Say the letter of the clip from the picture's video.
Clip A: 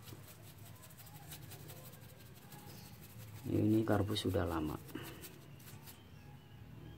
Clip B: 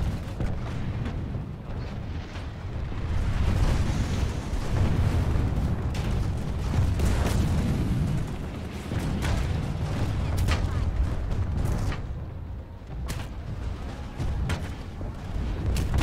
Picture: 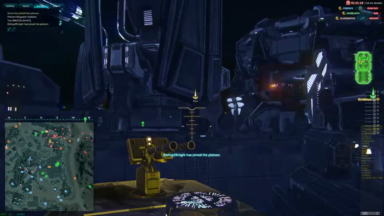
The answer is B